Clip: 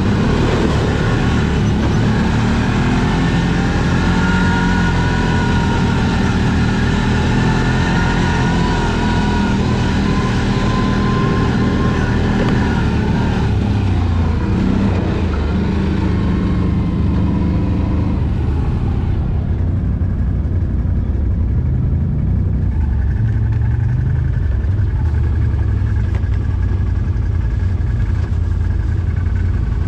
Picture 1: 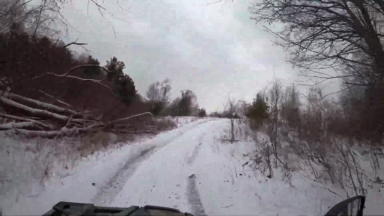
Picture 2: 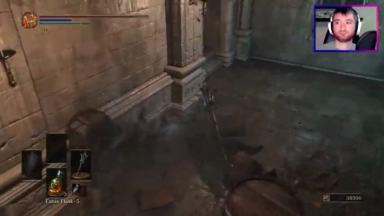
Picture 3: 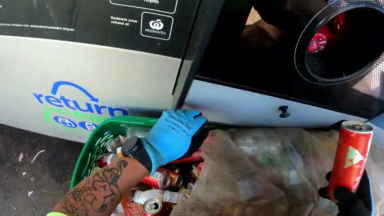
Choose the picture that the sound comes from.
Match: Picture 1